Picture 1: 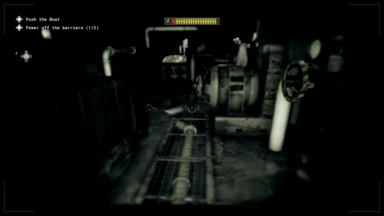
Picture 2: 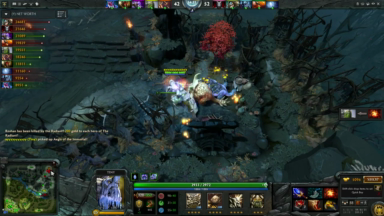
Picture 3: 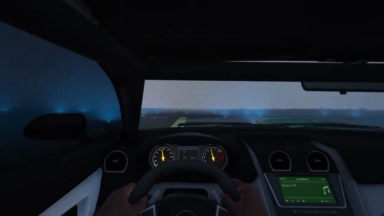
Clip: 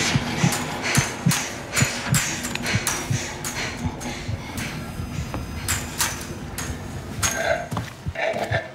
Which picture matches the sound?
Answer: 1